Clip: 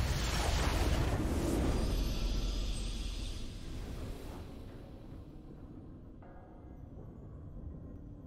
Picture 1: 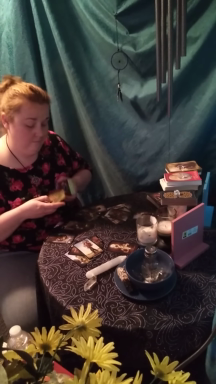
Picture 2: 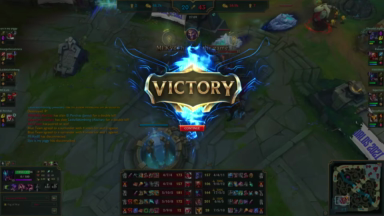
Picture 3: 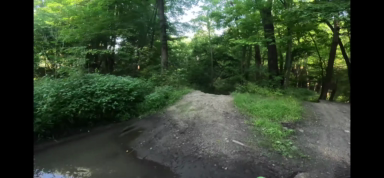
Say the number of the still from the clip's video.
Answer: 2